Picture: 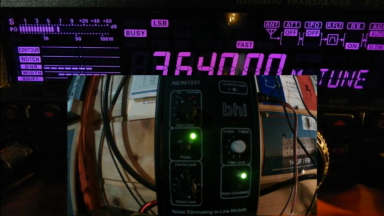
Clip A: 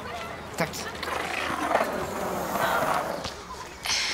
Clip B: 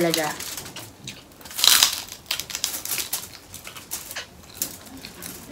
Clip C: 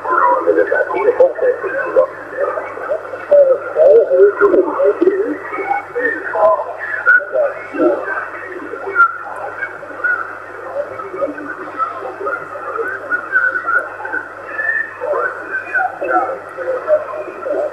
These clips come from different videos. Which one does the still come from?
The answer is C